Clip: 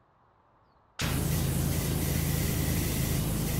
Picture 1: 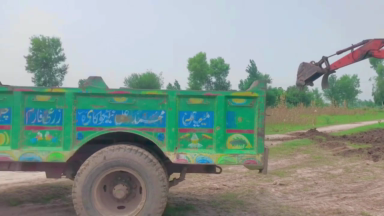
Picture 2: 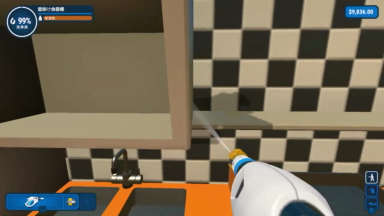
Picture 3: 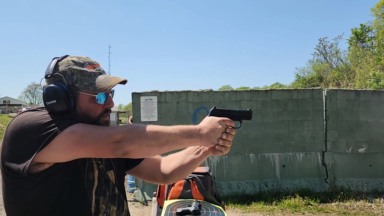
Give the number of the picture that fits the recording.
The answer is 2